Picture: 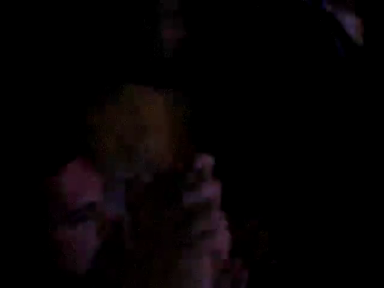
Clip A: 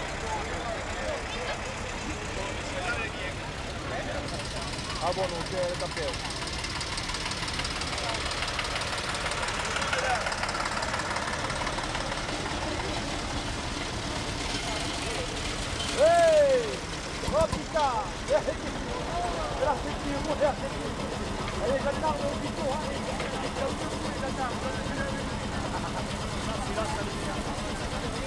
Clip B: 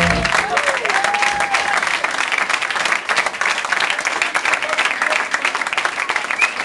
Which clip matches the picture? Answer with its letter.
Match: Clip B